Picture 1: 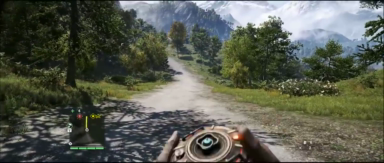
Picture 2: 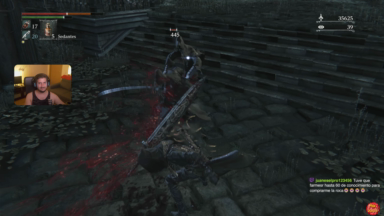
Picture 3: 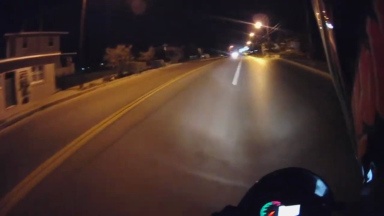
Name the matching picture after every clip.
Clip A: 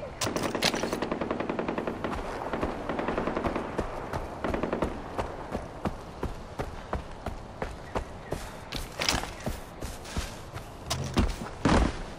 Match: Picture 1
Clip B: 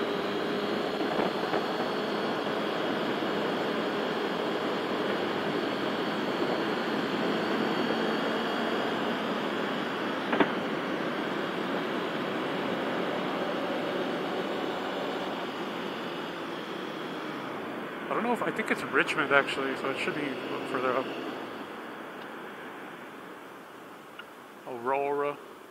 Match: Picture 3